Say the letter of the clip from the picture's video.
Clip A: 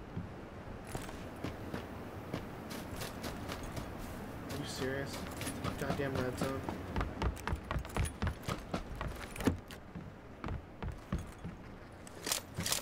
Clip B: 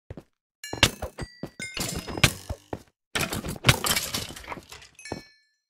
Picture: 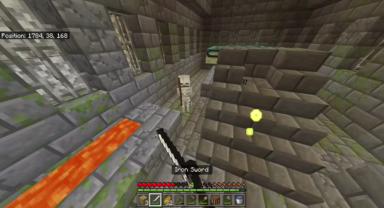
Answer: B